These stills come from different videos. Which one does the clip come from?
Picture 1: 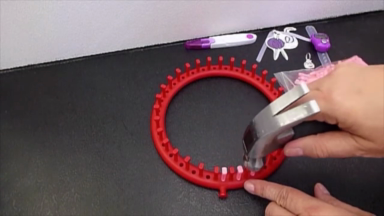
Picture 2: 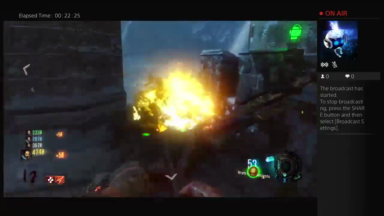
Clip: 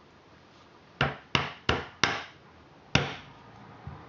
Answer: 1